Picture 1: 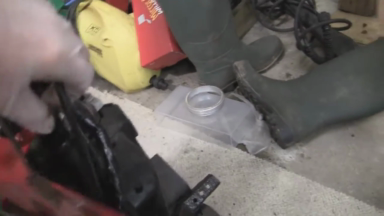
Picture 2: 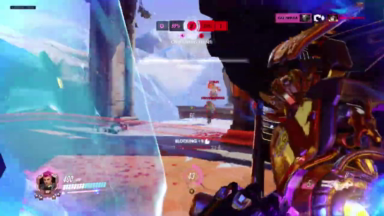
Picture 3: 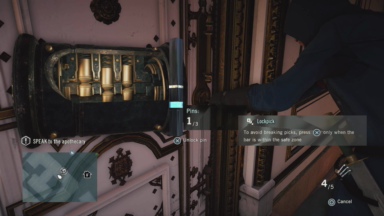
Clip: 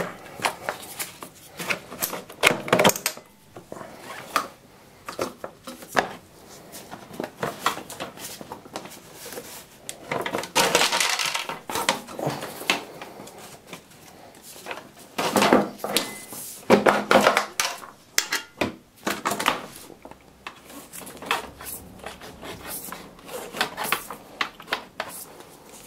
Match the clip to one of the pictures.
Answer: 1